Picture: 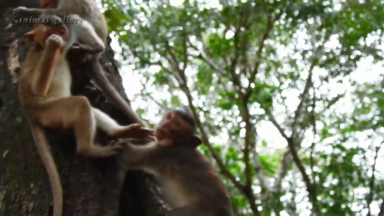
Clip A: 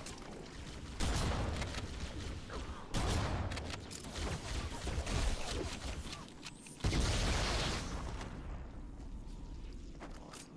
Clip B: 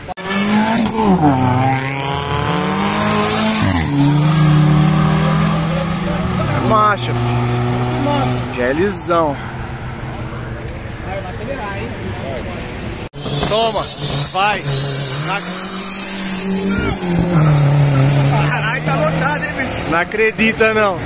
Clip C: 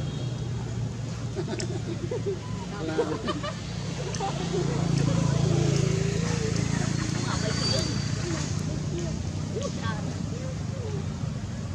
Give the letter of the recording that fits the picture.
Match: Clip C